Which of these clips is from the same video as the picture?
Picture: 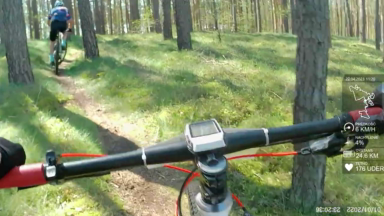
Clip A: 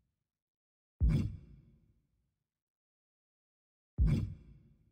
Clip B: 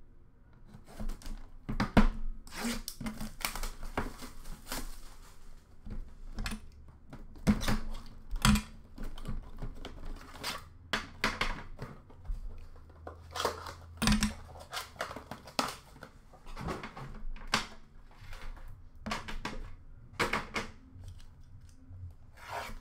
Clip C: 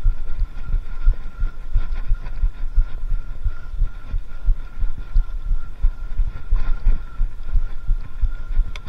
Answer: C